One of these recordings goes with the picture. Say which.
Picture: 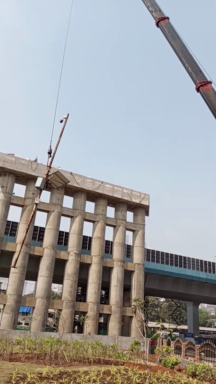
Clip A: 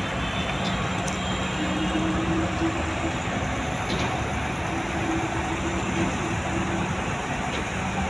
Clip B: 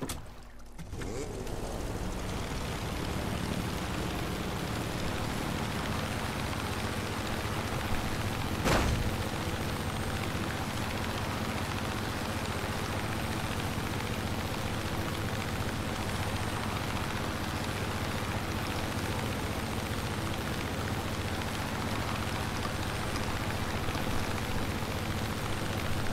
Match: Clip A